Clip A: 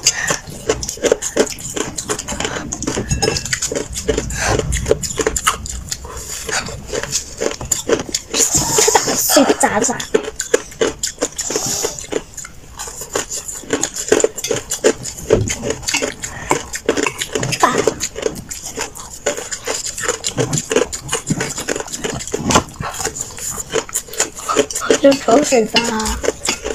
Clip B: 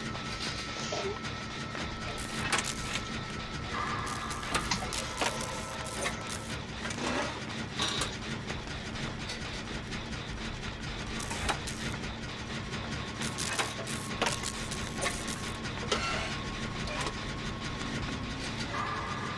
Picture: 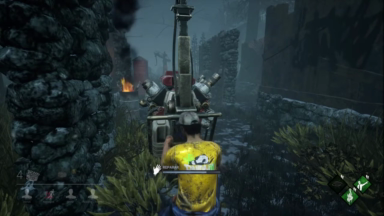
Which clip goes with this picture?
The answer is B